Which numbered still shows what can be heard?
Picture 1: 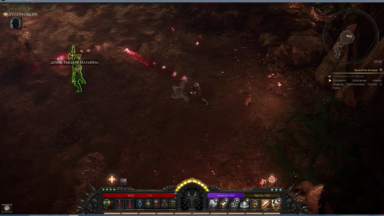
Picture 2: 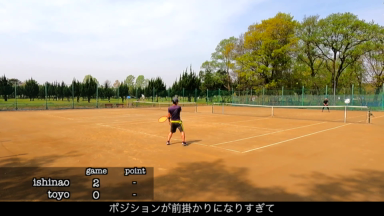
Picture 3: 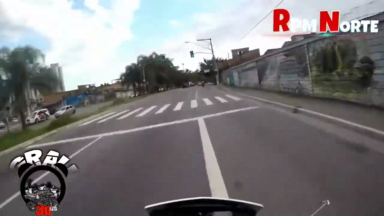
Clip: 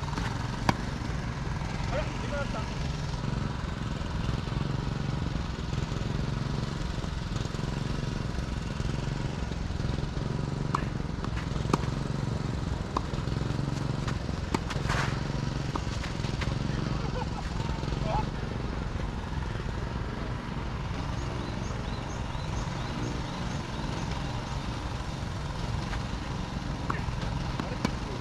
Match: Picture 2